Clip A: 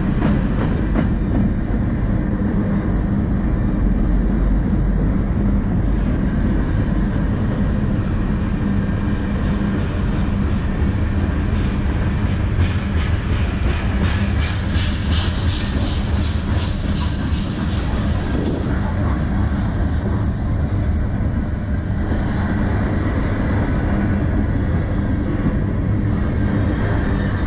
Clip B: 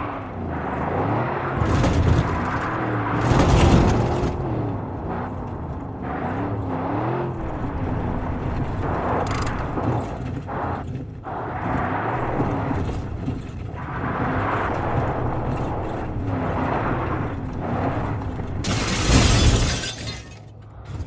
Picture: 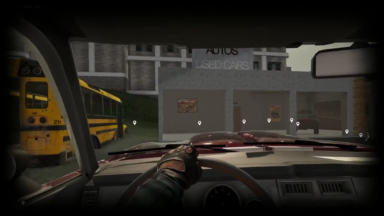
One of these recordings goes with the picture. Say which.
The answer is B